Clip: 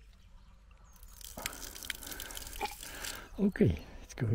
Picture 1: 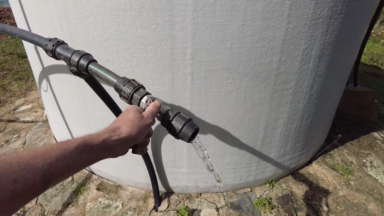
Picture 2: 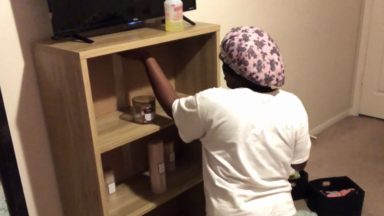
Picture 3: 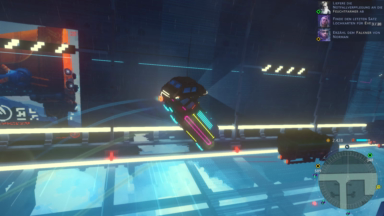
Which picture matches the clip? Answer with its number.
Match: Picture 1